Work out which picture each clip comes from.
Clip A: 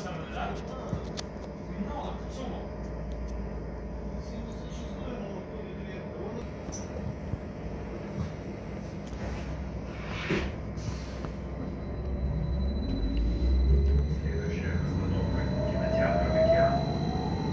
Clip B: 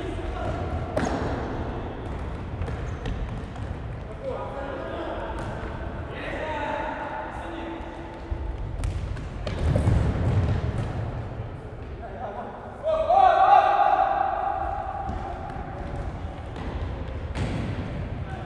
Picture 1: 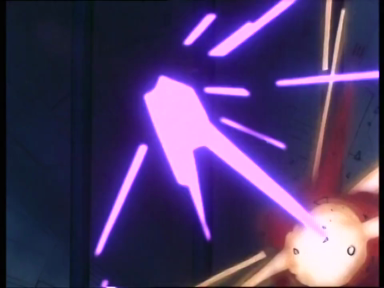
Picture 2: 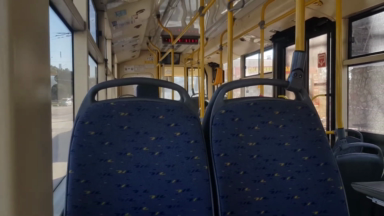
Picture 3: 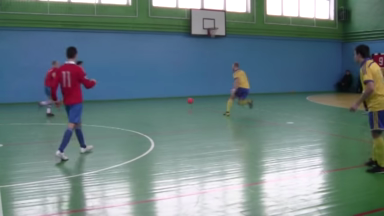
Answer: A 2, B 3